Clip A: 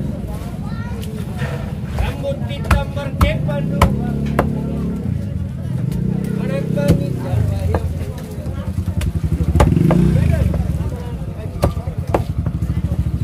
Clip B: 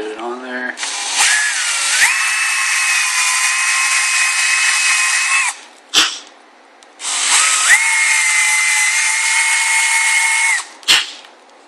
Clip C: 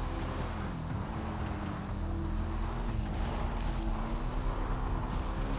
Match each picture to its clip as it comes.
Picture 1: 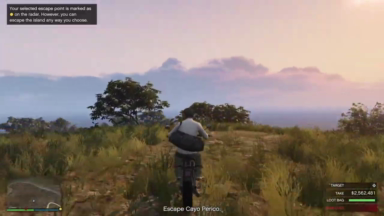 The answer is C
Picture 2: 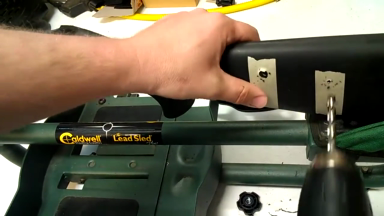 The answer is B